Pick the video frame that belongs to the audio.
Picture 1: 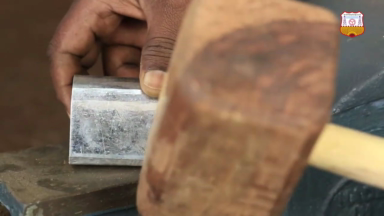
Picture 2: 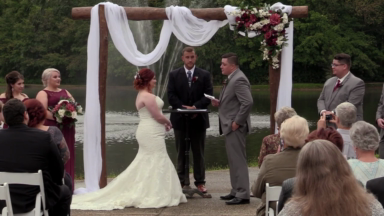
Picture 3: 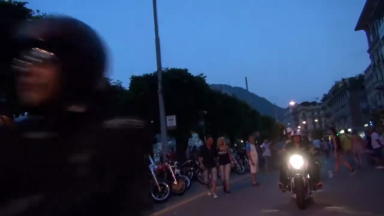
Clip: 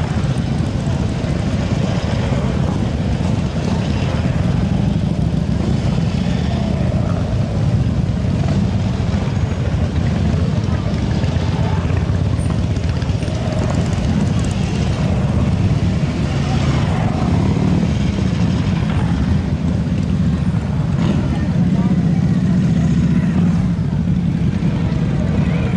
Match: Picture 3